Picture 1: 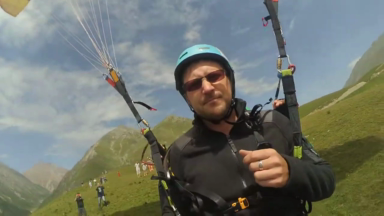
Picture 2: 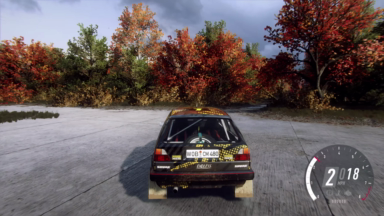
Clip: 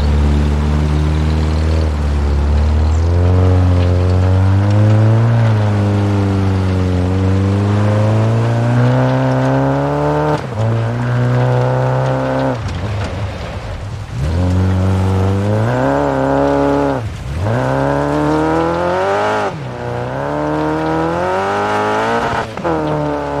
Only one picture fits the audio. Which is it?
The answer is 2